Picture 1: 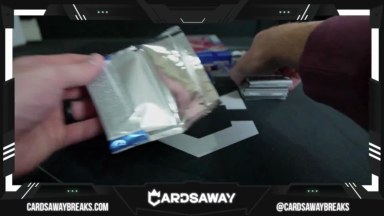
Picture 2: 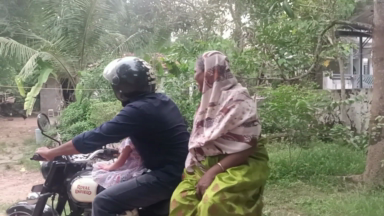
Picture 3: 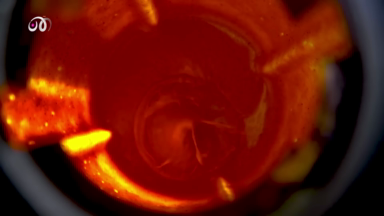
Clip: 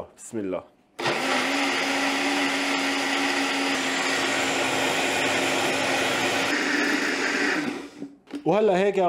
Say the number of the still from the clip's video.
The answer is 3